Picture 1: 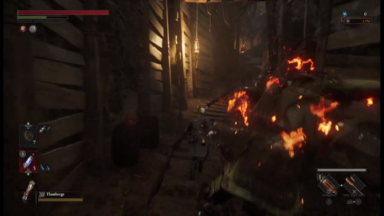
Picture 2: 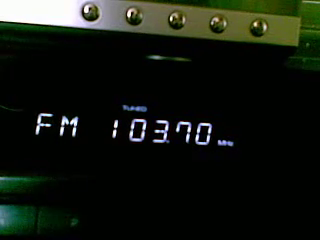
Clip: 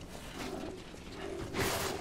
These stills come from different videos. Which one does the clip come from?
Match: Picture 1